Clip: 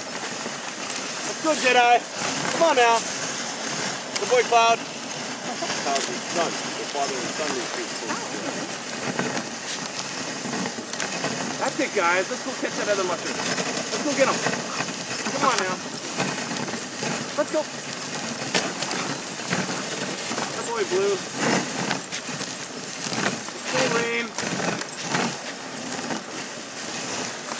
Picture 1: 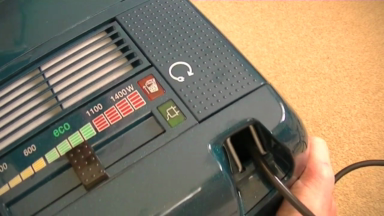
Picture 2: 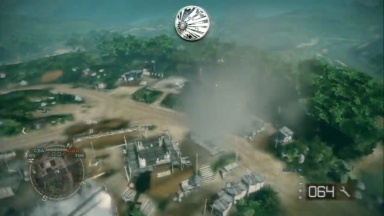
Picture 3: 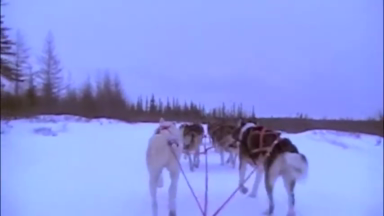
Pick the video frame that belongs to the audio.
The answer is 3